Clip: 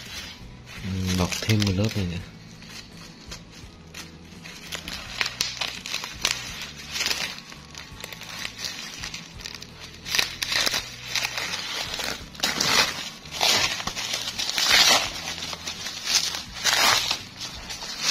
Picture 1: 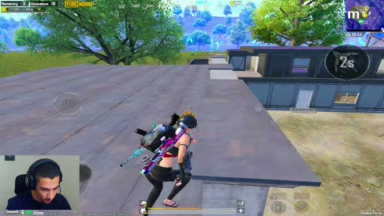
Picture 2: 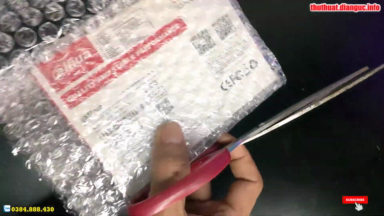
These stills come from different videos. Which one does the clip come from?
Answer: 2